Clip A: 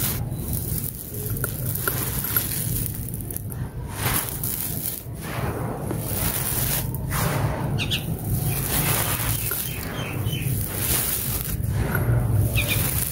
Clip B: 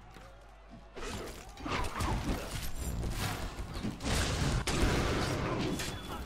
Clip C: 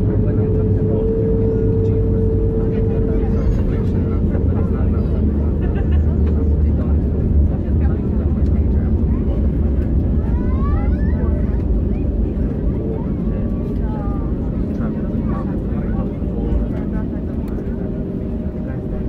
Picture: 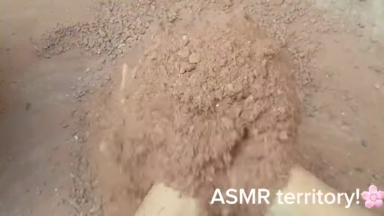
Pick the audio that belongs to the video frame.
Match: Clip A